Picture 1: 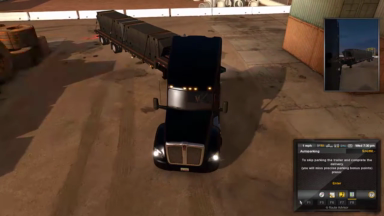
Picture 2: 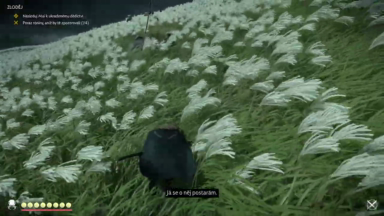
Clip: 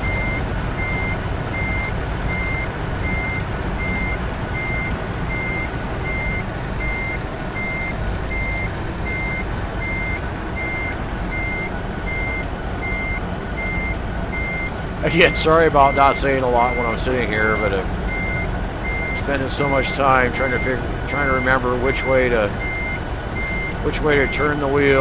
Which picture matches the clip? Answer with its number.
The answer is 1